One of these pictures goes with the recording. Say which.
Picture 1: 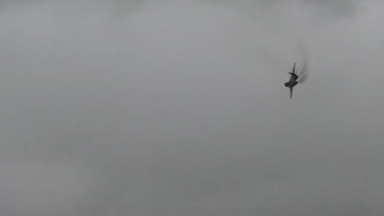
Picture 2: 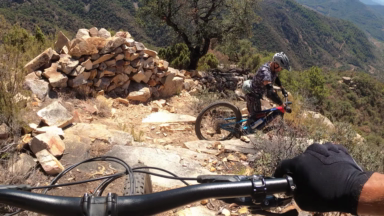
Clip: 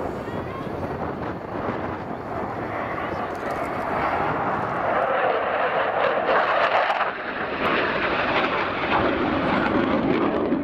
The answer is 1